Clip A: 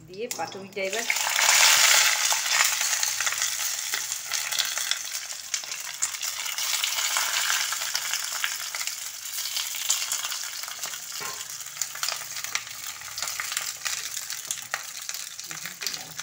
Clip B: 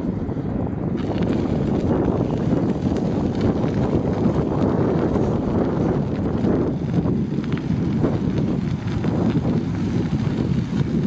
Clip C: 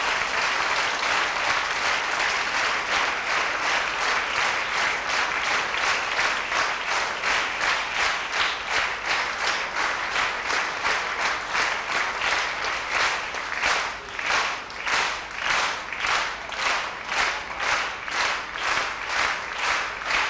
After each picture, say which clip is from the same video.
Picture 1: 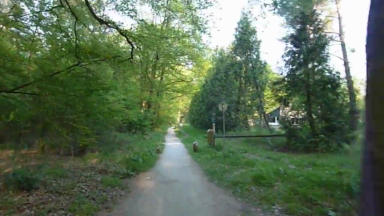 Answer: B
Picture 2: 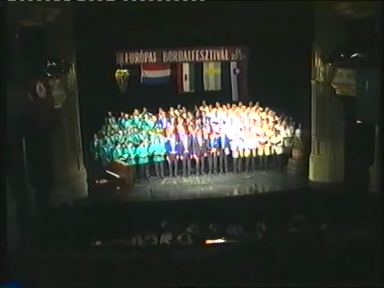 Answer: C